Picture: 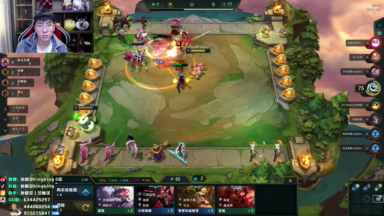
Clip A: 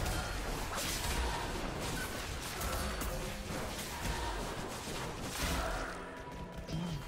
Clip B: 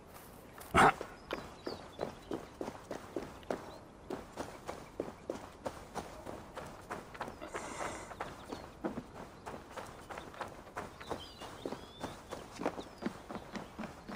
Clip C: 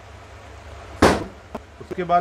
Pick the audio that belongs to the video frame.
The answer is A